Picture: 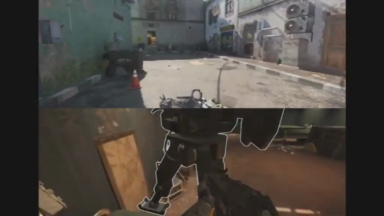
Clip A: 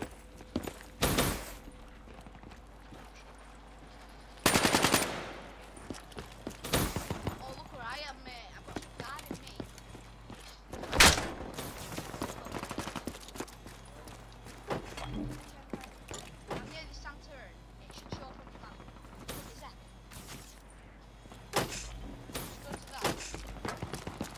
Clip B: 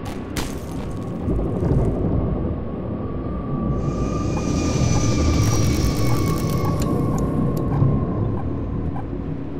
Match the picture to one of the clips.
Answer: A